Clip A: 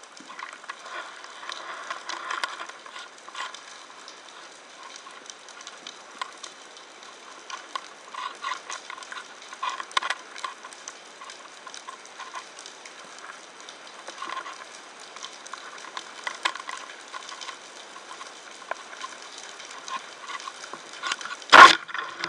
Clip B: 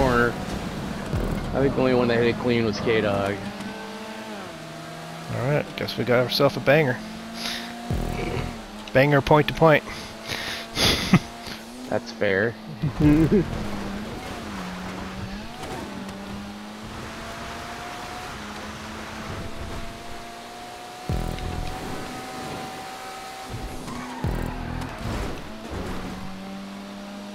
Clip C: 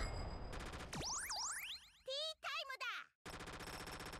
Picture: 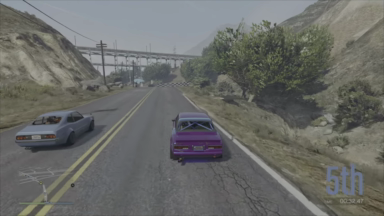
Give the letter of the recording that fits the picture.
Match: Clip B